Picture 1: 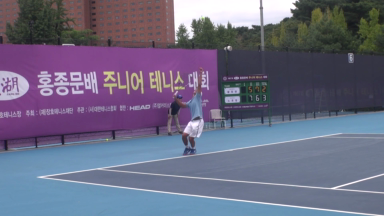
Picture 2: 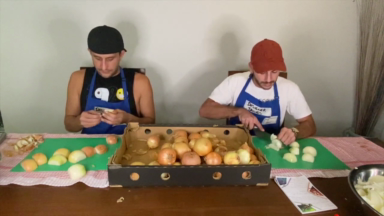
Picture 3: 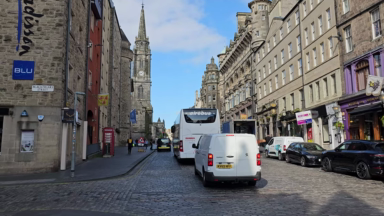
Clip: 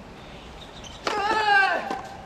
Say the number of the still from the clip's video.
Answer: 1